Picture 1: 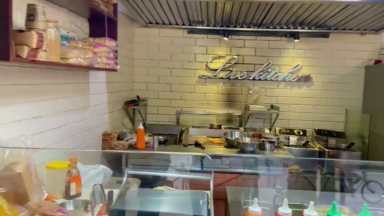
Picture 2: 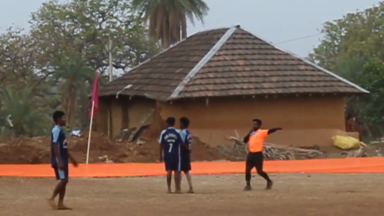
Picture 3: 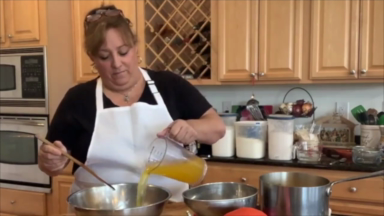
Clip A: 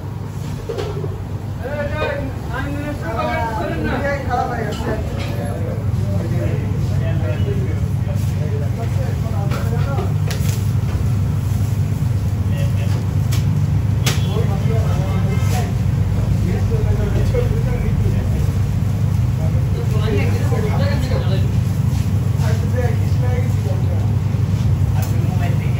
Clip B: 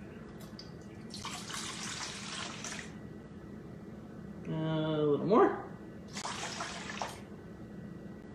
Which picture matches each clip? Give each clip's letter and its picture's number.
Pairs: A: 1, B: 3